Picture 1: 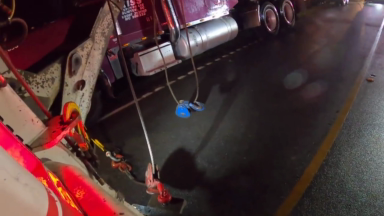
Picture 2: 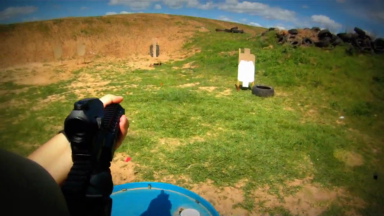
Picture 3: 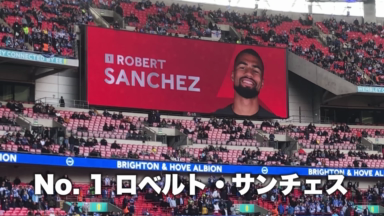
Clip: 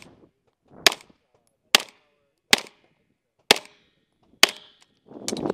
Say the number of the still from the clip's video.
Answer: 2